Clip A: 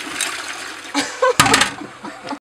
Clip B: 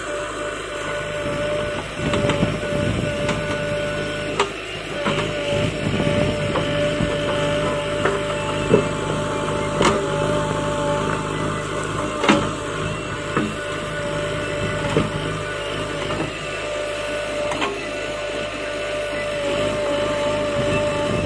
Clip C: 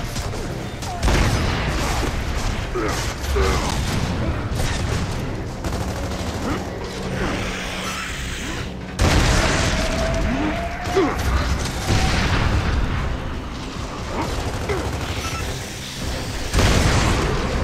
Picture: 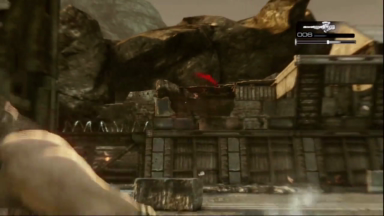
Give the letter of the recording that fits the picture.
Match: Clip C